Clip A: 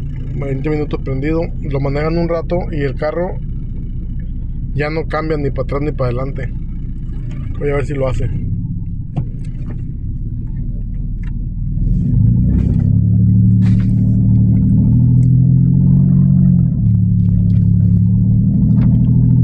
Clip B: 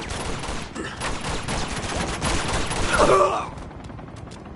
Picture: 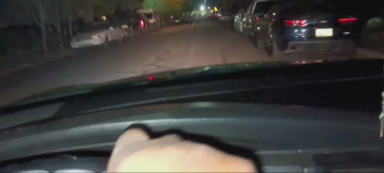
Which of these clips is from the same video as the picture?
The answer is A